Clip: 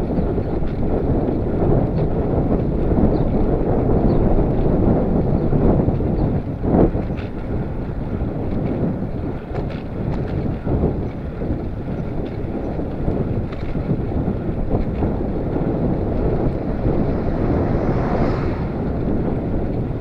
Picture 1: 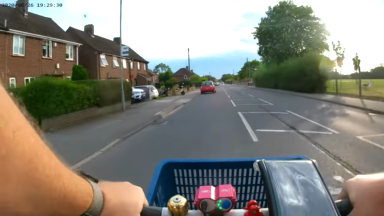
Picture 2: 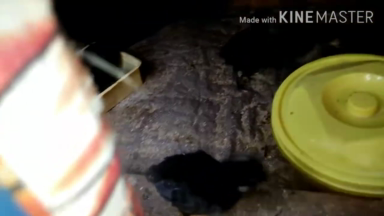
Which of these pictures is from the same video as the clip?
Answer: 1